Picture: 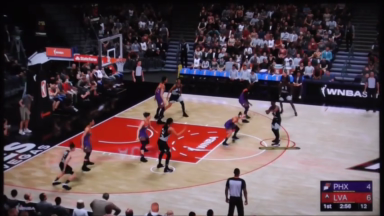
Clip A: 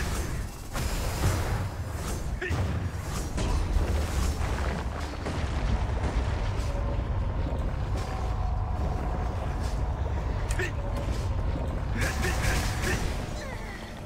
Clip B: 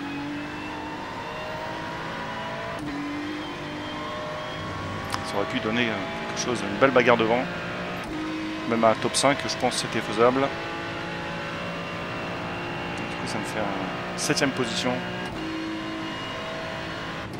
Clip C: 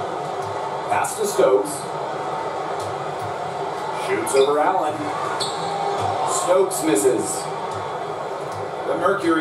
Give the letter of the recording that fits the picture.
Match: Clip C